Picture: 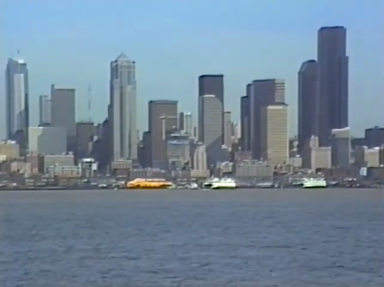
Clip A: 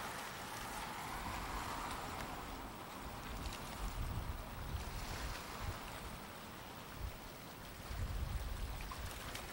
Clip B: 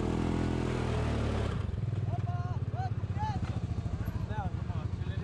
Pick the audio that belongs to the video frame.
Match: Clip A